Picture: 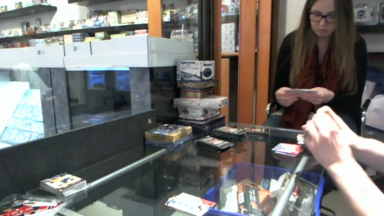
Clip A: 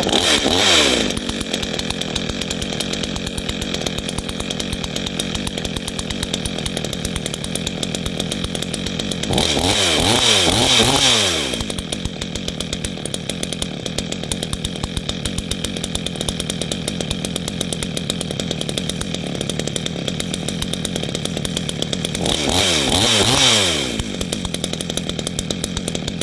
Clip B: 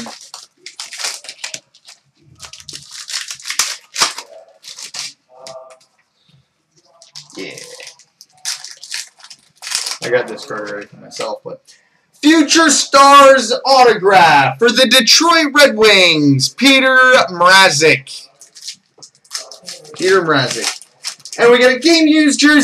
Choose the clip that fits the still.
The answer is B